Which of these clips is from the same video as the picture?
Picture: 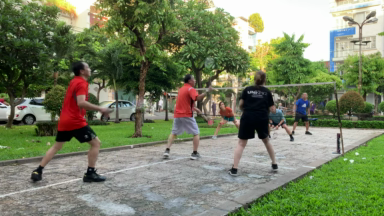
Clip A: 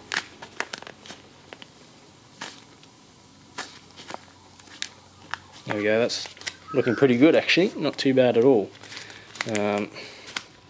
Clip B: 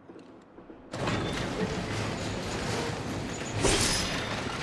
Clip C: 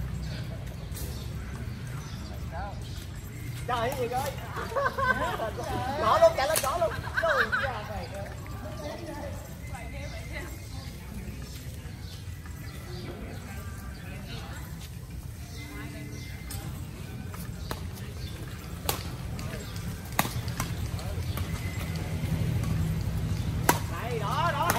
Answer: C